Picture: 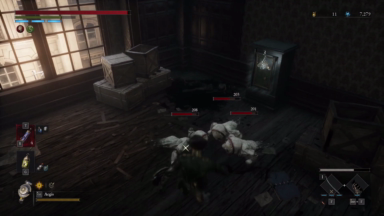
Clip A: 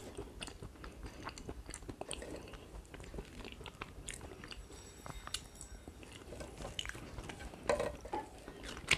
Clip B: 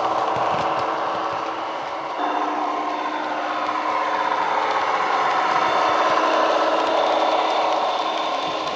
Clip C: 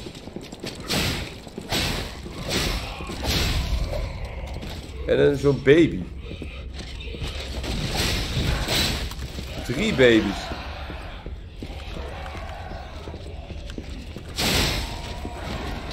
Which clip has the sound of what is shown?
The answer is C